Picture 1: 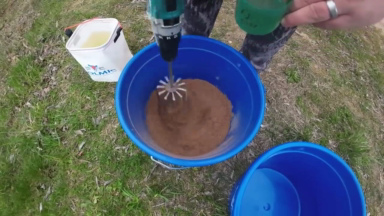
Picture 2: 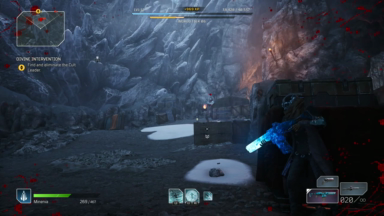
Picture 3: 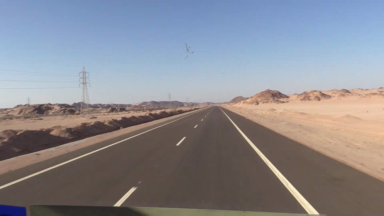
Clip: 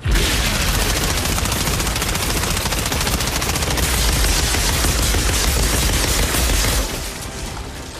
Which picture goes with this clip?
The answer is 2